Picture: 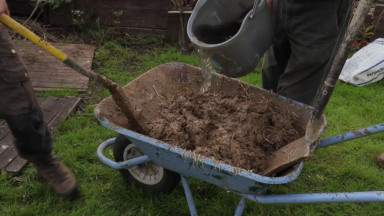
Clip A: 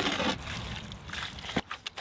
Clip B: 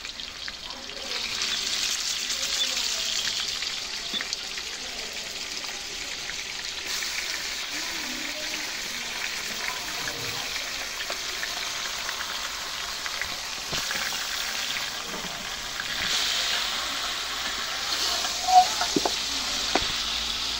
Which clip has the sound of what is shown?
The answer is A